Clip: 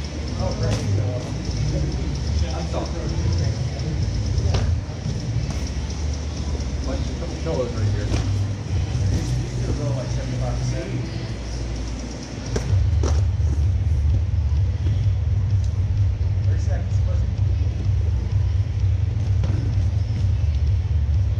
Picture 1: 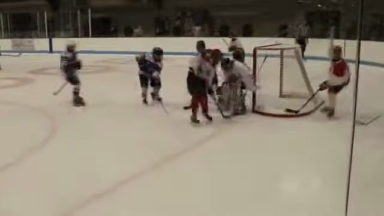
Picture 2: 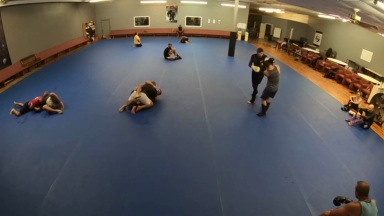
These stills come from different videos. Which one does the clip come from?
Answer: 2